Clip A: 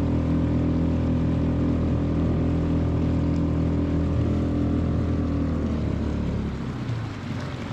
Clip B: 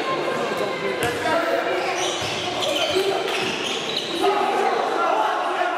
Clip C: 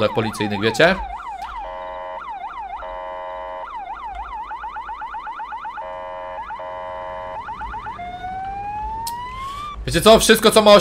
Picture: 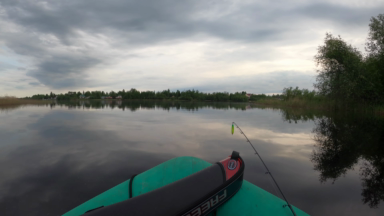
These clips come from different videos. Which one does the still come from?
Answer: A